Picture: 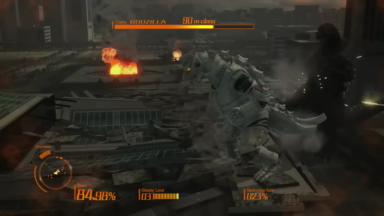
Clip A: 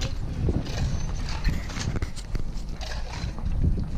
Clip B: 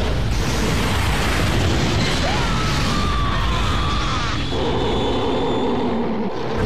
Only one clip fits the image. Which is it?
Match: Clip B